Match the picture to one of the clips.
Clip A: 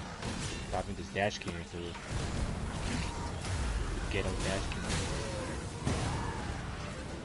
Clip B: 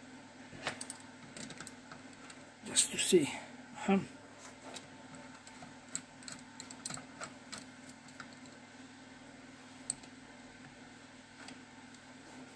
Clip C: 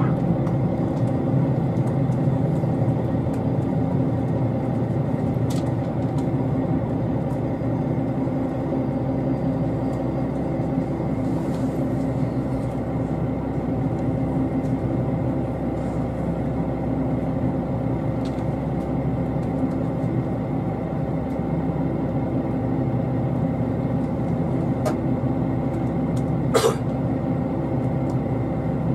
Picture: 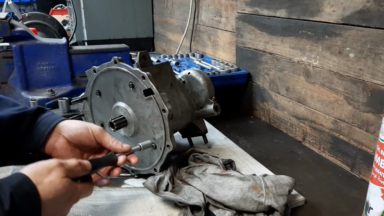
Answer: B